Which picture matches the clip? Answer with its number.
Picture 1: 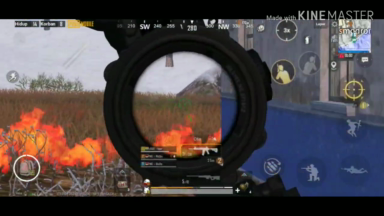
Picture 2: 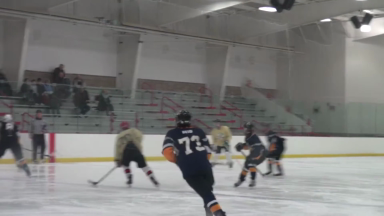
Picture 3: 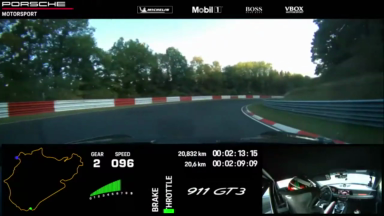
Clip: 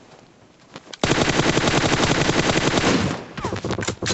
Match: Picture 1